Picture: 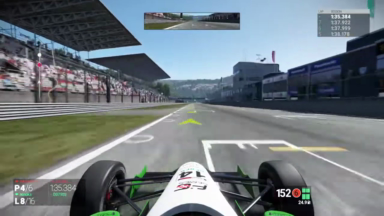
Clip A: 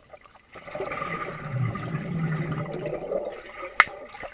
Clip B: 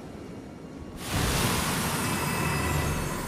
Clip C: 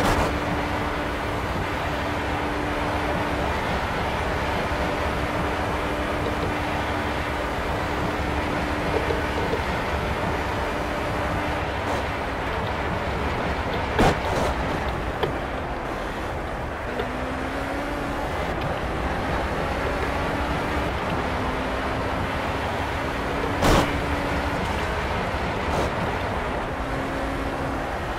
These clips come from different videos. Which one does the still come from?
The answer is C